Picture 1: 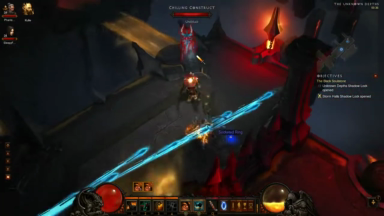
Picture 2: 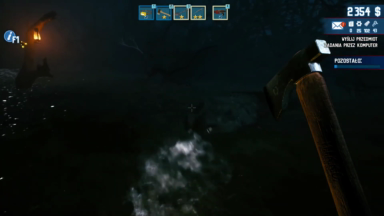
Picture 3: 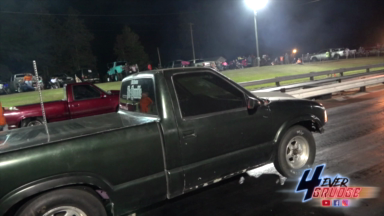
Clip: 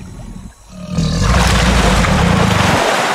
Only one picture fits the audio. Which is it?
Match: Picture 2